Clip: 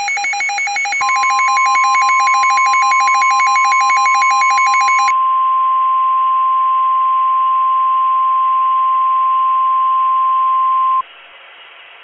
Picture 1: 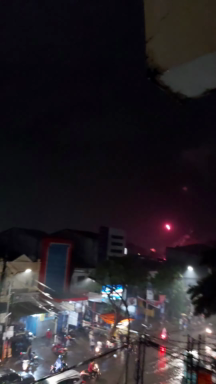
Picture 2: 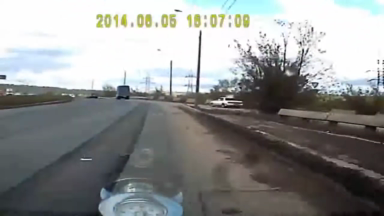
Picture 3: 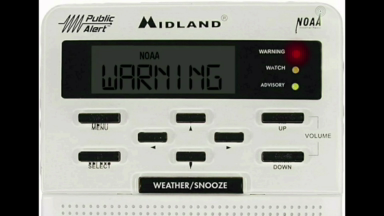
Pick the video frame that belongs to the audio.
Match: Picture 3